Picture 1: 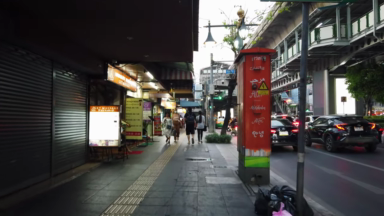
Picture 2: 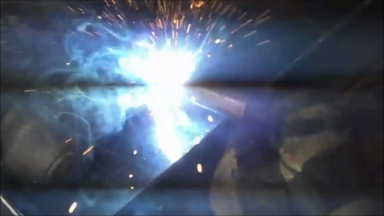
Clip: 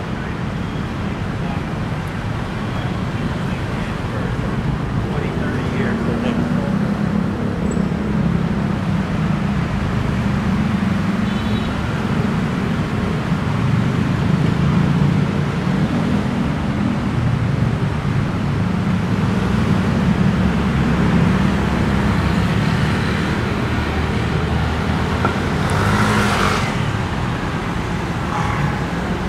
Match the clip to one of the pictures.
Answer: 1